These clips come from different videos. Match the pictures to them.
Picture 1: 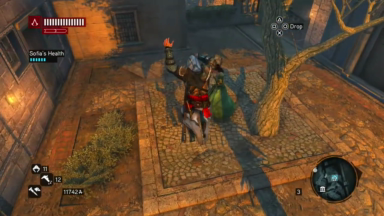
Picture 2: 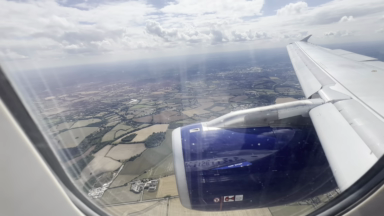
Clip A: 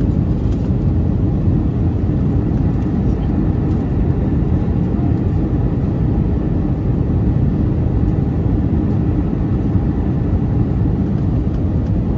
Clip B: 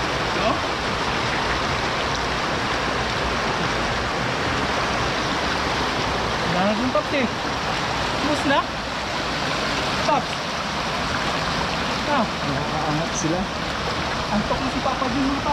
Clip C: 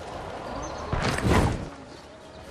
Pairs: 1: C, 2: A